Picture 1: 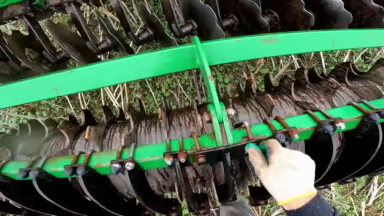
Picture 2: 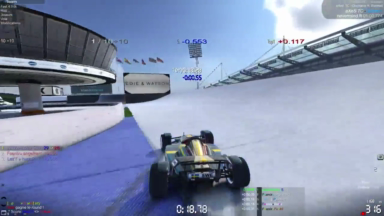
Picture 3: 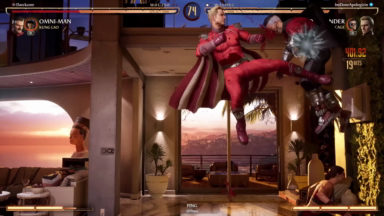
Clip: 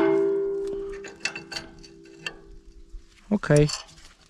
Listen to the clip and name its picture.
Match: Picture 1